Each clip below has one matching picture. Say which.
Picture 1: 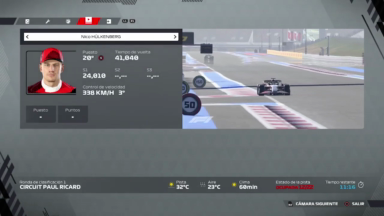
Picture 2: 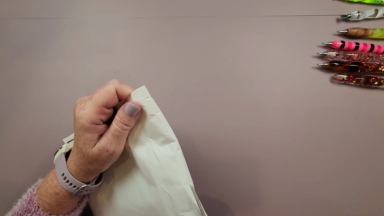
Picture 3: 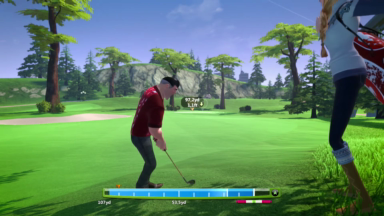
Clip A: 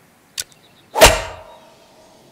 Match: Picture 3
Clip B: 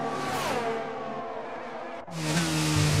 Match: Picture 1